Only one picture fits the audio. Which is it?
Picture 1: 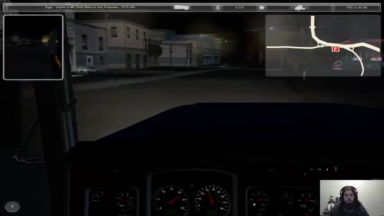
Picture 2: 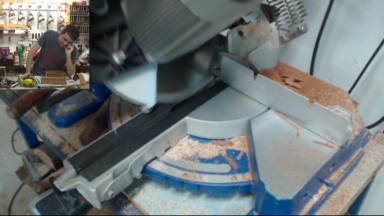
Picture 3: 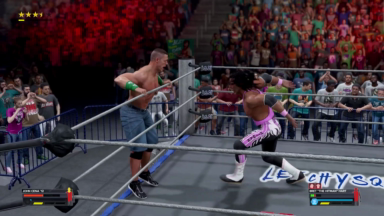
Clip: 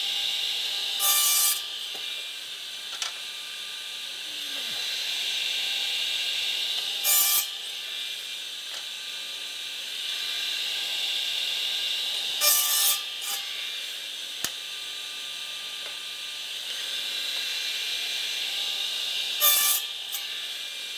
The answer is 2